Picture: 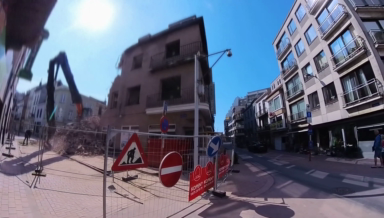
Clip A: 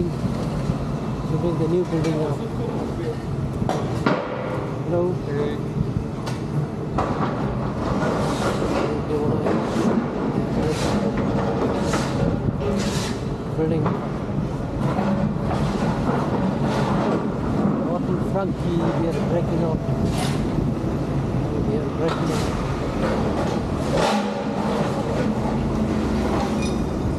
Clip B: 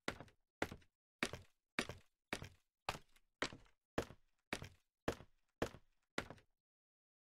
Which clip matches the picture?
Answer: A